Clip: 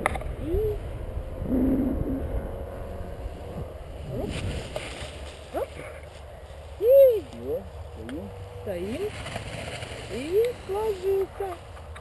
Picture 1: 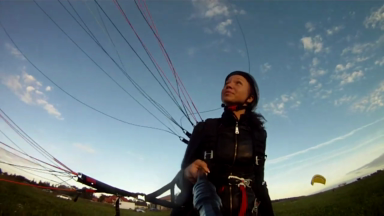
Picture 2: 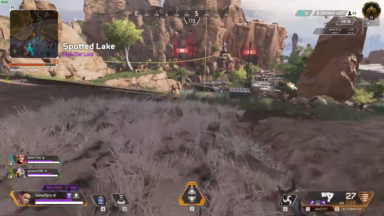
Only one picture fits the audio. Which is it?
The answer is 1